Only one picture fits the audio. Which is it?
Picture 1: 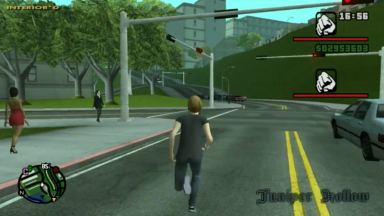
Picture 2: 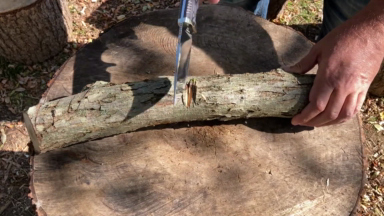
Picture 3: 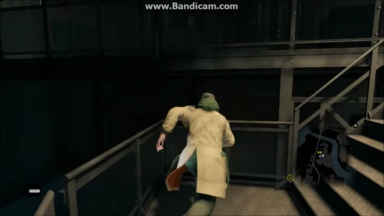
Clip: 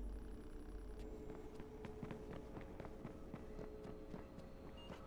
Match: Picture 3